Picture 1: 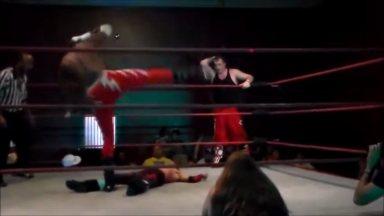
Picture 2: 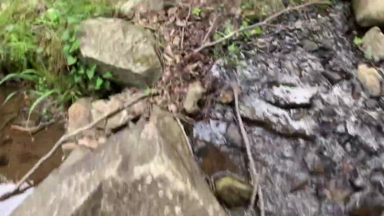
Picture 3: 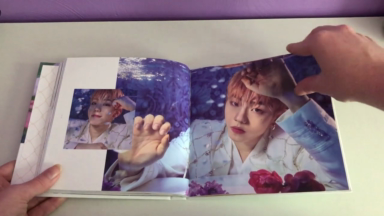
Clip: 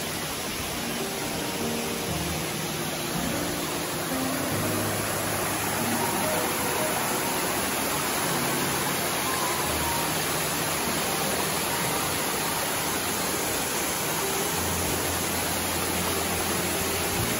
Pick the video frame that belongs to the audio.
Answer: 2